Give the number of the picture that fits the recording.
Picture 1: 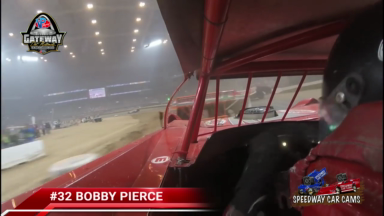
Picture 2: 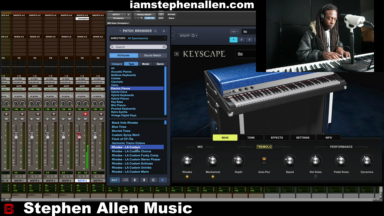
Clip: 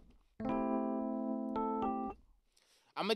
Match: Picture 2